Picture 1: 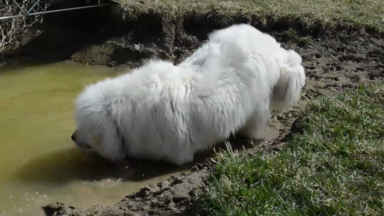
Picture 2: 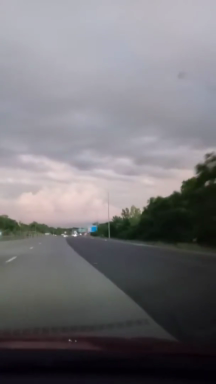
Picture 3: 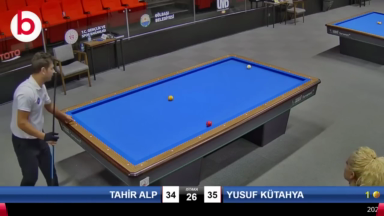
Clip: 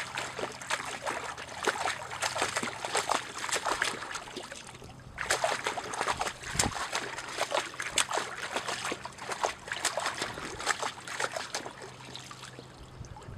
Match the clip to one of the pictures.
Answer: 1